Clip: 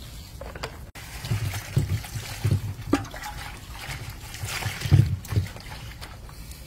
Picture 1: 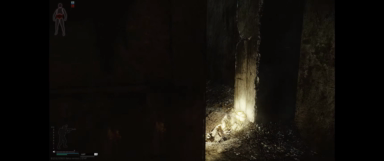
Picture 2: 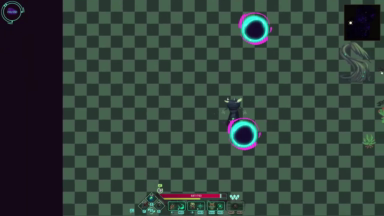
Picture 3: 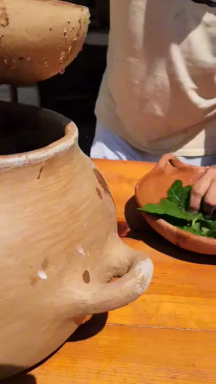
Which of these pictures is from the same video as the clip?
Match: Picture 3